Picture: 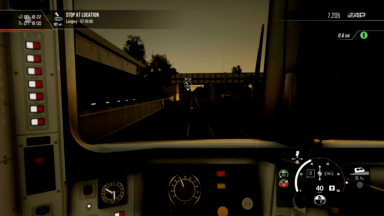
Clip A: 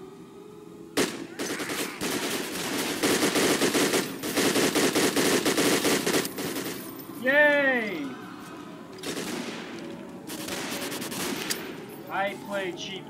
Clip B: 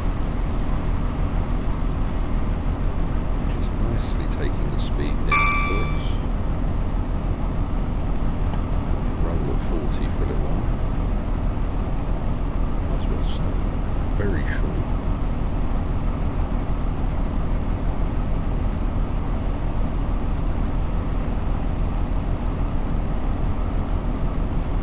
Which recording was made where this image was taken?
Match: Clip B